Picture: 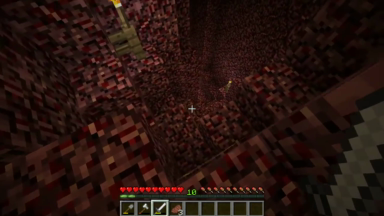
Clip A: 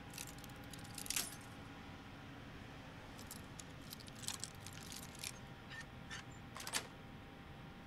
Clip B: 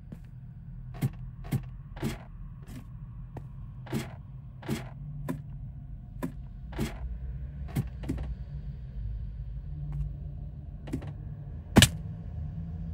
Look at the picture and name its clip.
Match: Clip B